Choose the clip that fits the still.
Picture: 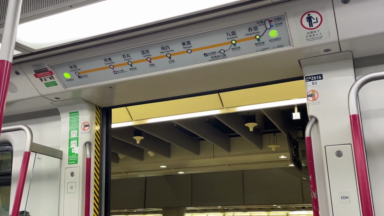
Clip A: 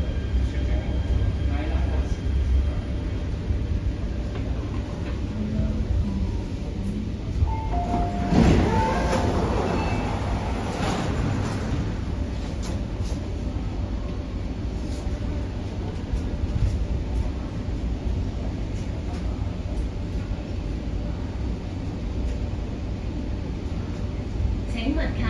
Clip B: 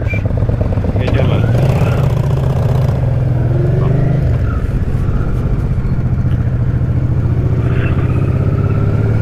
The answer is A